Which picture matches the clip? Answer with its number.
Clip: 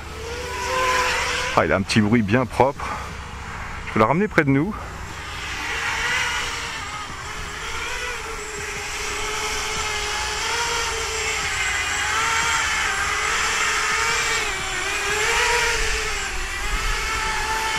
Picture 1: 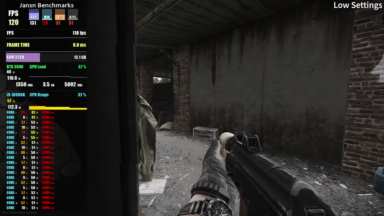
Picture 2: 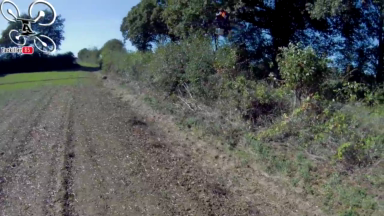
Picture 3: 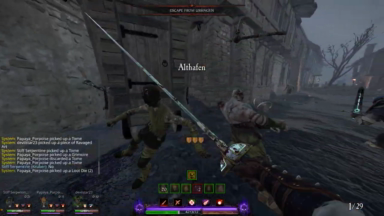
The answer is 2